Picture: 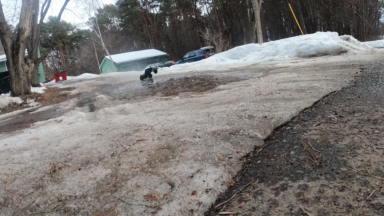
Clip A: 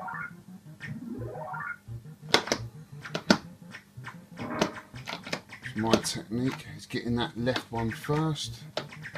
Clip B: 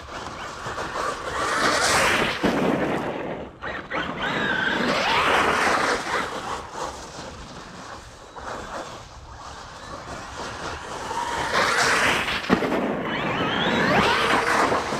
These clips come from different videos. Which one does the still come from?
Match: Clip B